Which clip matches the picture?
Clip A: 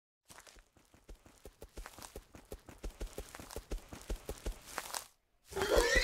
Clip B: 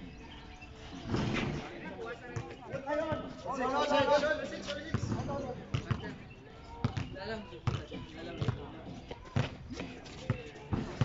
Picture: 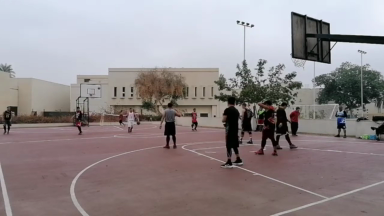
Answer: B